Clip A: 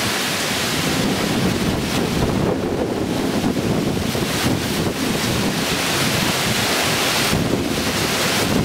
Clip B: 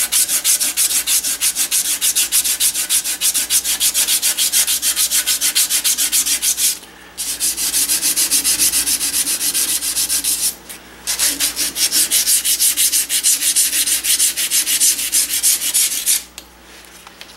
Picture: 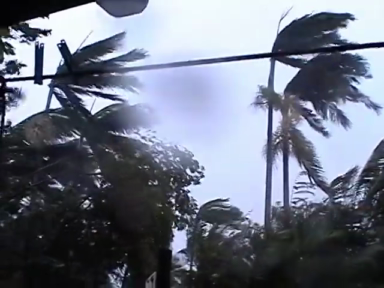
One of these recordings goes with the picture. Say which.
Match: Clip A